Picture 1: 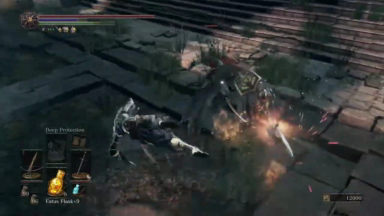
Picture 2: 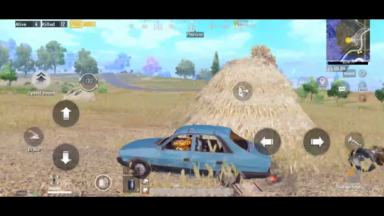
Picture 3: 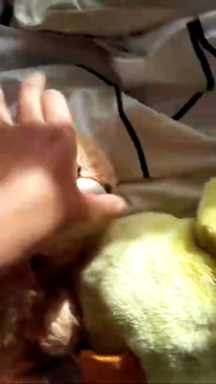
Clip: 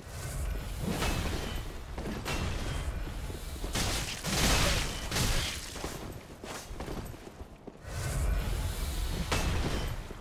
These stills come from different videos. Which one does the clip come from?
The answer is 1